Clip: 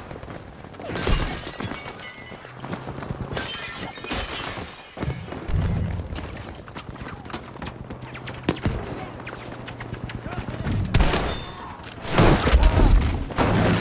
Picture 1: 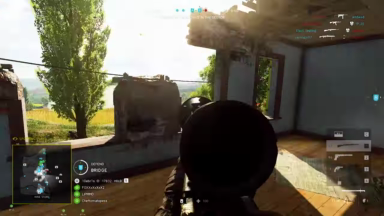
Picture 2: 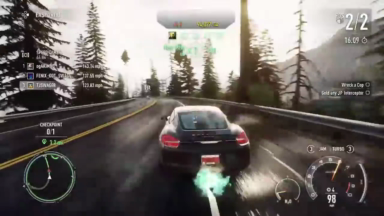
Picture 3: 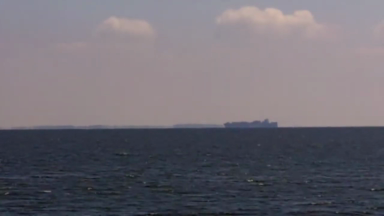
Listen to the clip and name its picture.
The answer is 1